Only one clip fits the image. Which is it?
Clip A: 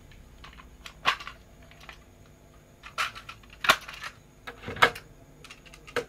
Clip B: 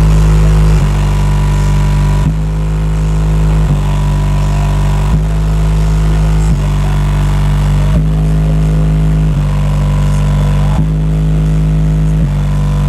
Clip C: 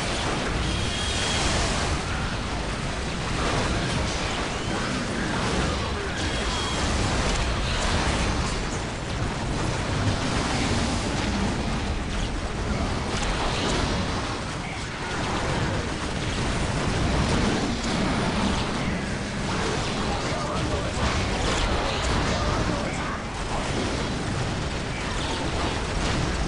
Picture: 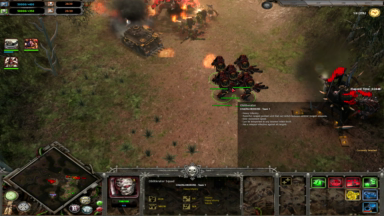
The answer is C